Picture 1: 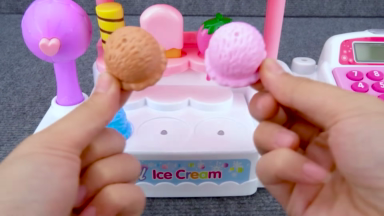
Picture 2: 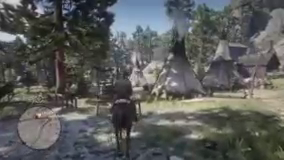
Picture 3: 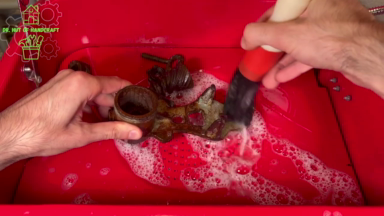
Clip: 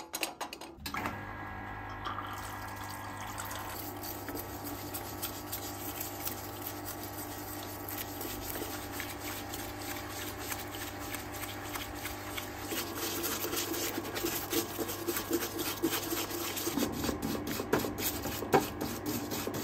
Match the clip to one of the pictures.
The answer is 3